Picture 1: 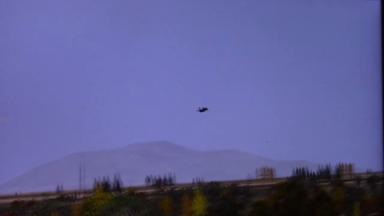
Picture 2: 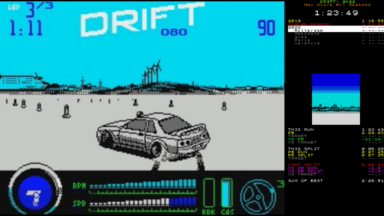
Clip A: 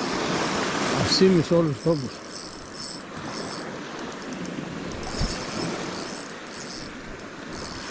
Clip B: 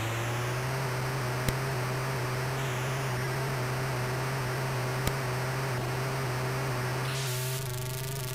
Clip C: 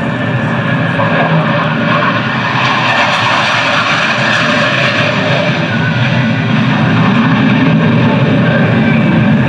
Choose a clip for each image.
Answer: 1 C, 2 B